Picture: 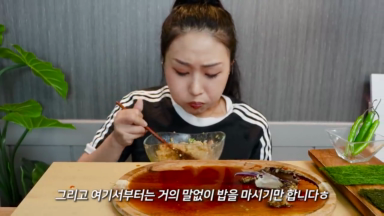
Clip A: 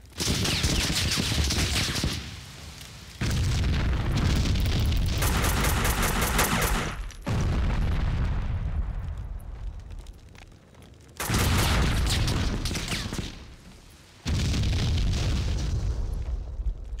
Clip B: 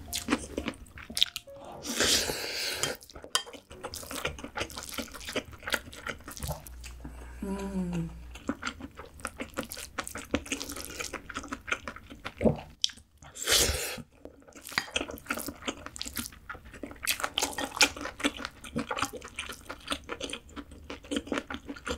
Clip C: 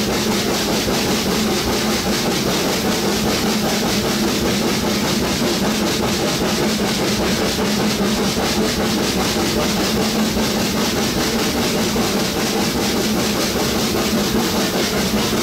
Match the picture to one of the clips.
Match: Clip B